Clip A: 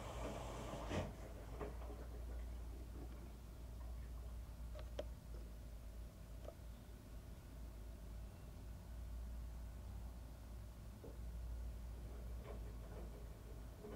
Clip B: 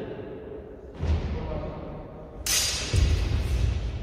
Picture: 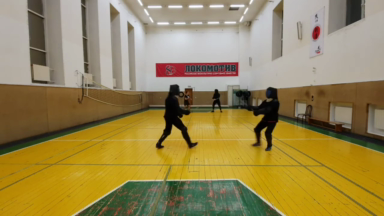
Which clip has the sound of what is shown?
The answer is B